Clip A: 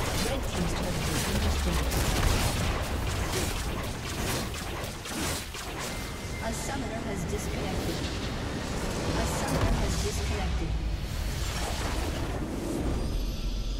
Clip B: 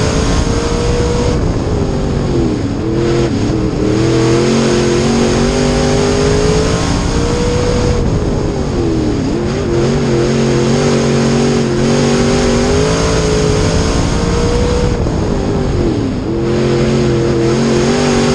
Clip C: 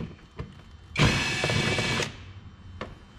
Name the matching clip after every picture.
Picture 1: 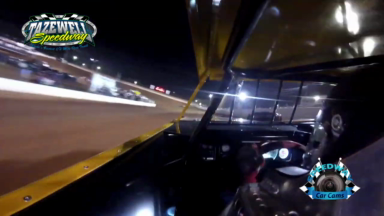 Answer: B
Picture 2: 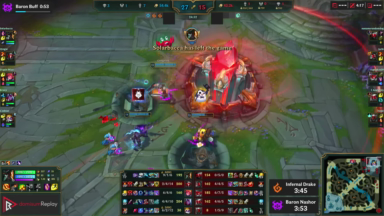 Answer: A